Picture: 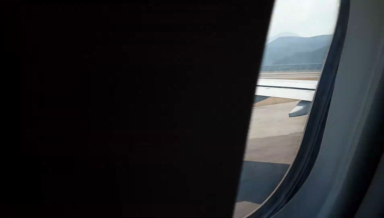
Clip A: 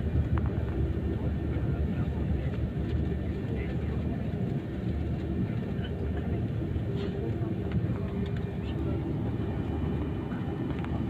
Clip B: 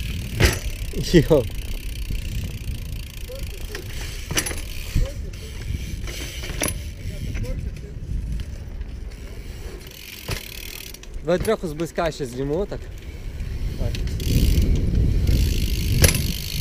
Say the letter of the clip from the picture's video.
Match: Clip A